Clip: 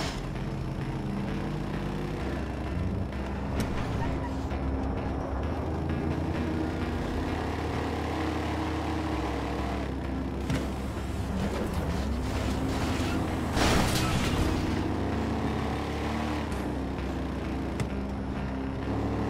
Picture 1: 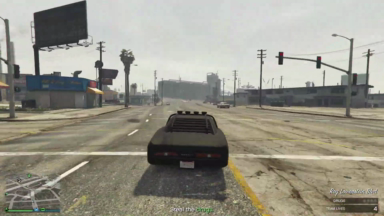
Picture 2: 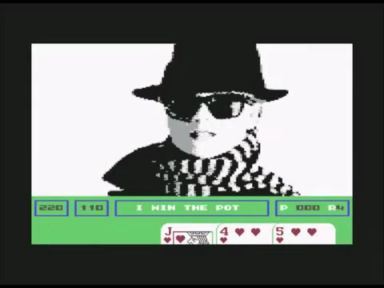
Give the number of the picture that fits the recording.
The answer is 1